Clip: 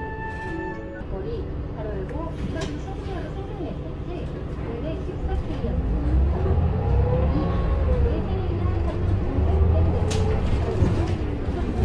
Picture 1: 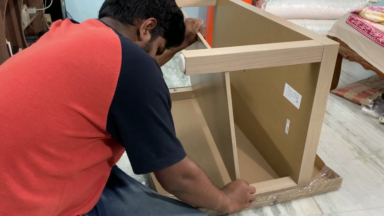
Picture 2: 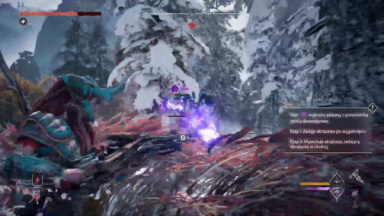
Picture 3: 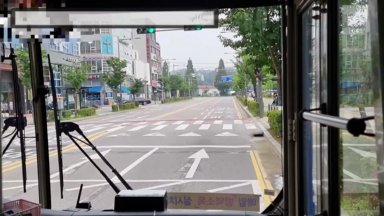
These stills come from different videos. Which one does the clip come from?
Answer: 3